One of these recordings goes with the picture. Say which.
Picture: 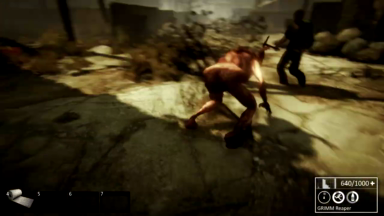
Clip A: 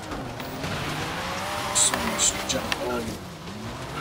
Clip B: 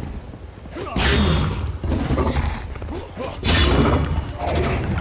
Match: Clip B